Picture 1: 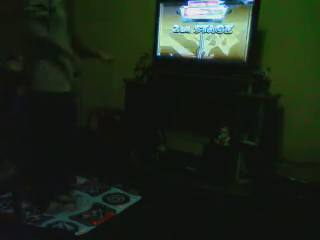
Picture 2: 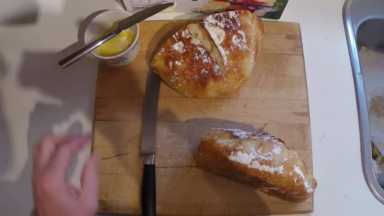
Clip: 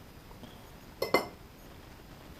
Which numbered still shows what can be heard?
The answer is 2